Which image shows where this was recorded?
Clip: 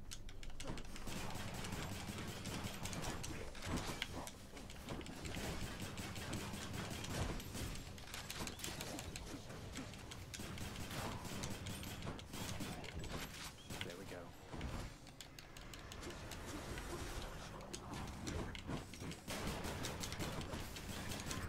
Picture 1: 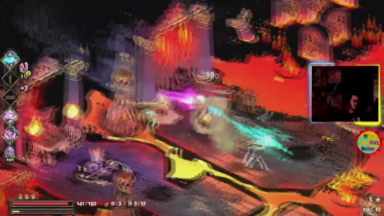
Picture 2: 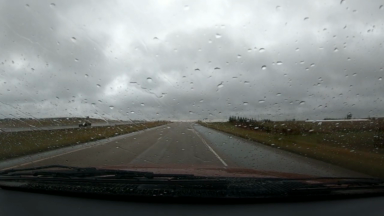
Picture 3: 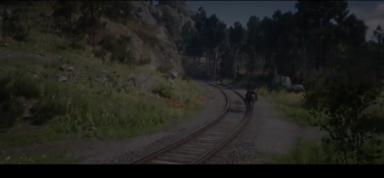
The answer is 1